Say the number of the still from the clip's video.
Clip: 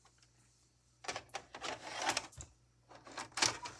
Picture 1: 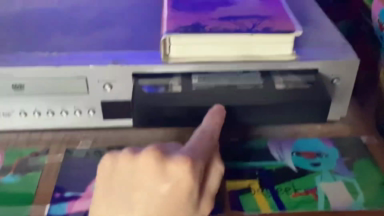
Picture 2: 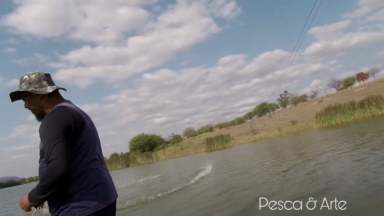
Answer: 1